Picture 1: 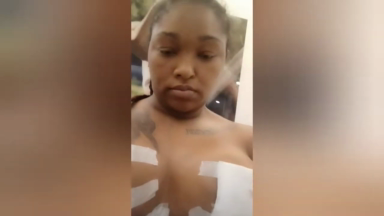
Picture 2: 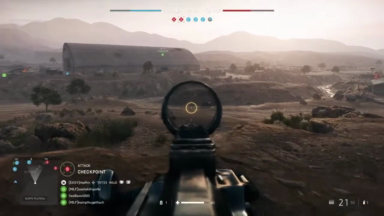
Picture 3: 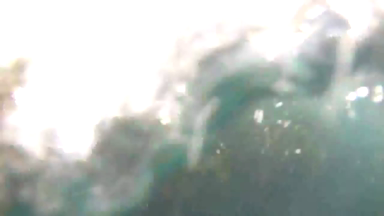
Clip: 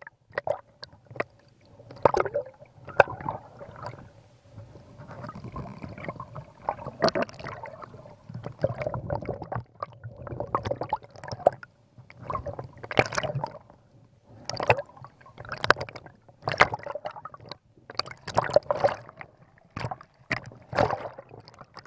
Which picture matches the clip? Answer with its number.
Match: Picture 3